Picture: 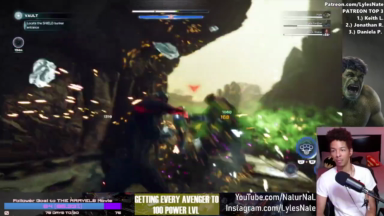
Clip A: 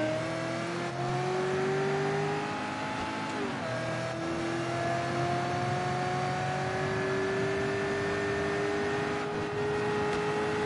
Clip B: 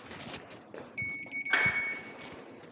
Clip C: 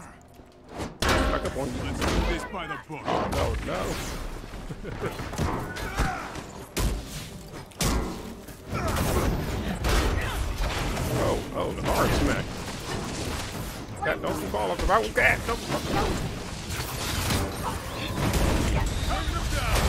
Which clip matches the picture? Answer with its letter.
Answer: C